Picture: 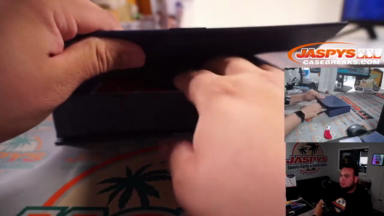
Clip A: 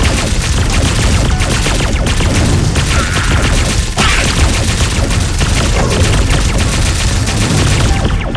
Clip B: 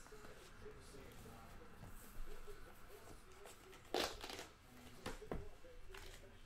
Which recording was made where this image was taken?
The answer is B